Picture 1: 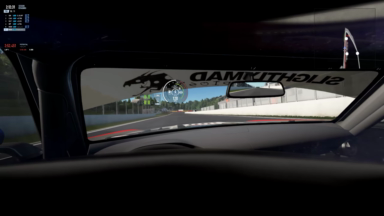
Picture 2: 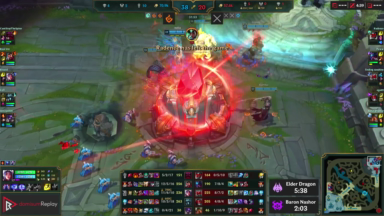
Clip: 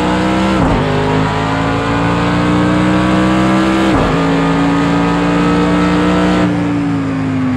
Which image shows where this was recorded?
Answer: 1